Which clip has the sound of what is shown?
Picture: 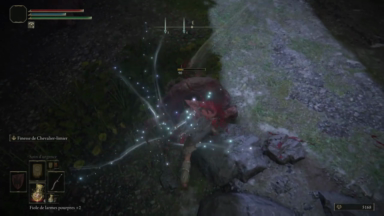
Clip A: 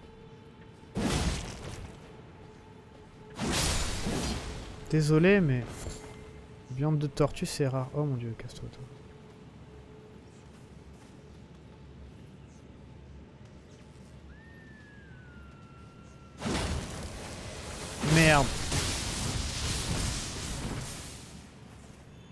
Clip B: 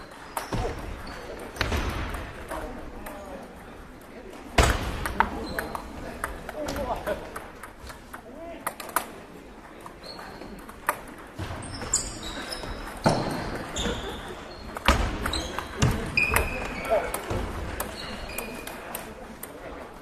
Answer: A